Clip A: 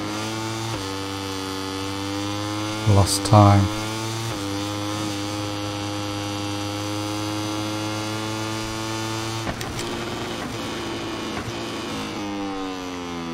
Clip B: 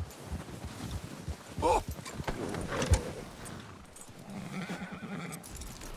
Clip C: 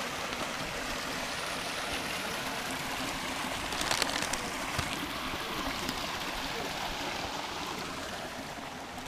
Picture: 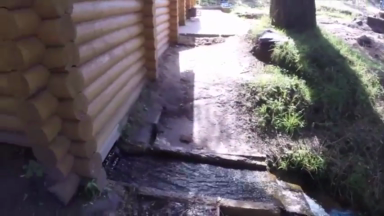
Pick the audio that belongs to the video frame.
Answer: C